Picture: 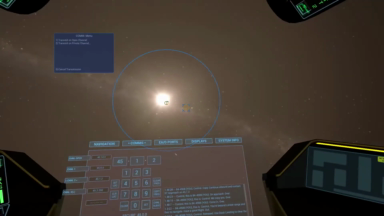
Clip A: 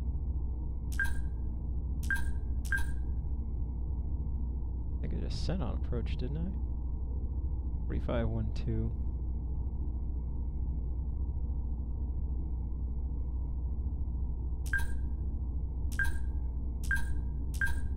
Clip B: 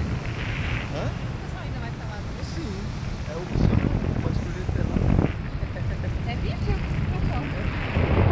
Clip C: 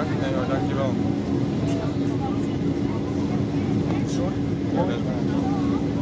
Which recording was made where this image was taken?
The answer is A